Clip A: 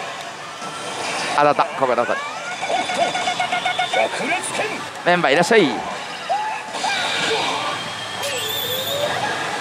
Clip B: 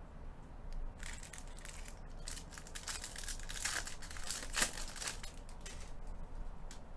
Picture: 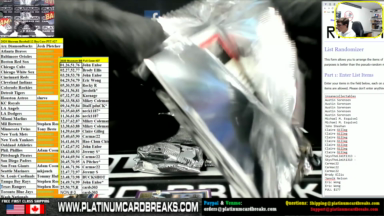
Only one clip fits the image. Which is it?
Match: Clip B